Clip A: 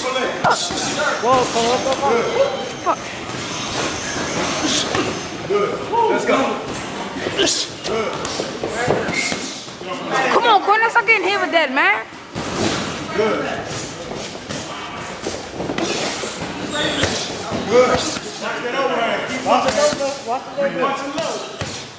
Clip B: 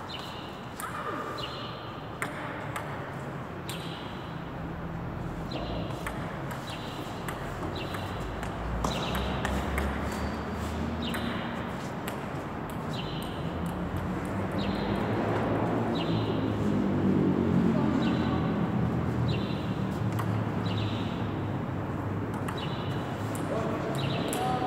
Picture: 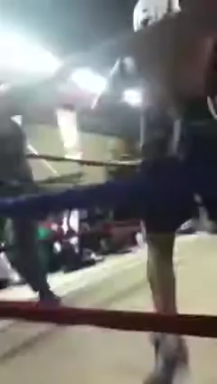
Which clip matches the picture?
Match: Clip A